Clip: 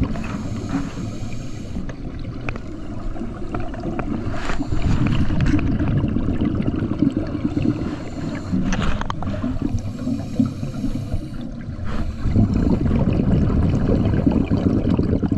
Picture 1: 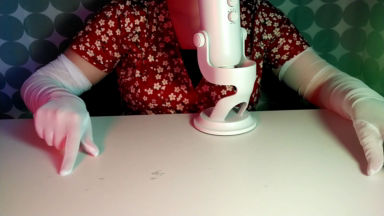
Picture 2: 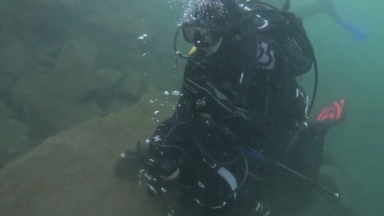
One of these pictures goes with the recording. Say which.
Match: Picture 2